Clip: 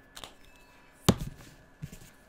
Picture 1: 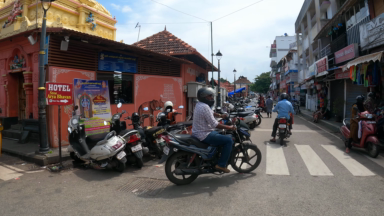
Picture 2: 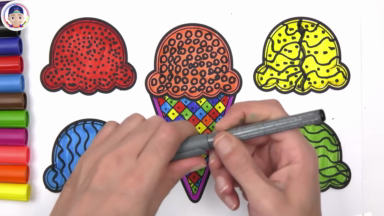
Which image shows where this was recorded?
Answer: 2